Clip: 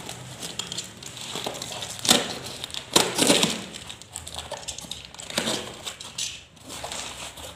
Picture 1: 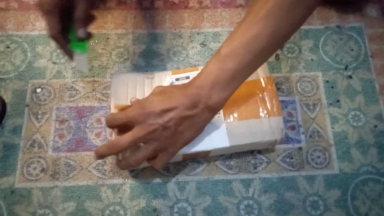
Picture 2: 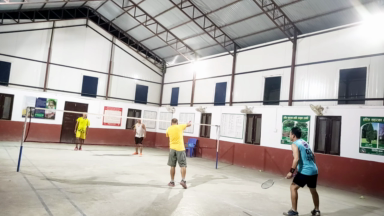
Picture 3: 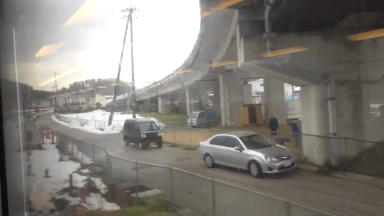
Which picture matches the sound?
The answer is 1